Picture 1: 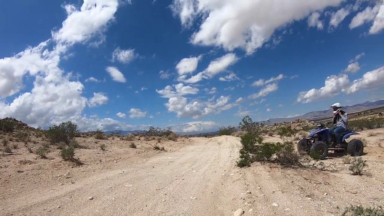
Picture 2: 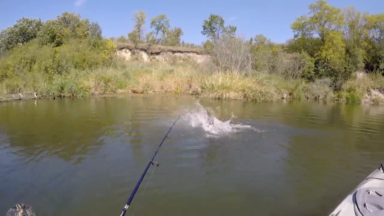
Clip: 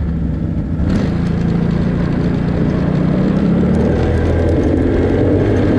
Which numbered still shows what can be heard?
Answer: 1